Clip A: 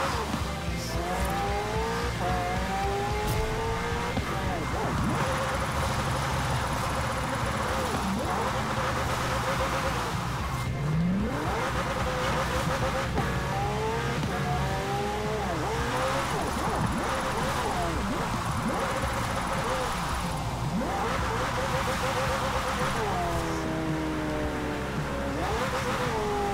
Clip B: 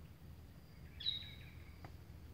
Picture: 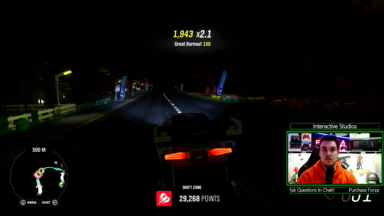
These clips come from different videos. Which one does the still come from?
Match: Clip A